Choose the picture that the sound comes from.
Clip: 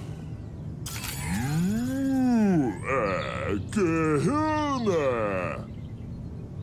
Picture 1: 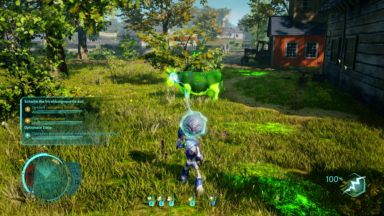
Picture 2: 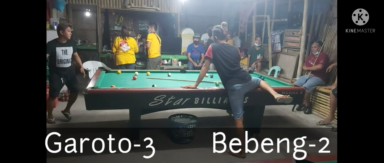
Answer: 1